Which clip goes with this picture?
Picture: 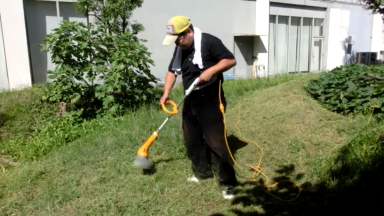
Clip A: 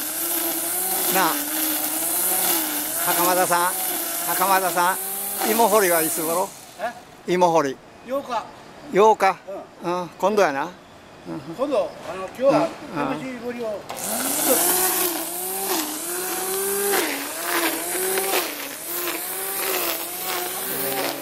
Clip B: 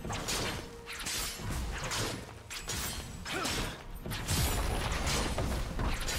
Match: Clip A